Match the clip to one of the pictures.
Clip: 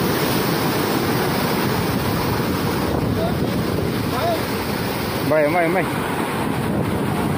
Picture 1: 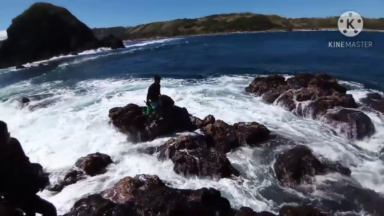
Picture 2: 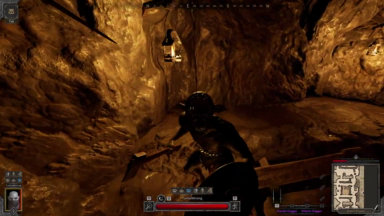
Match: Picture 1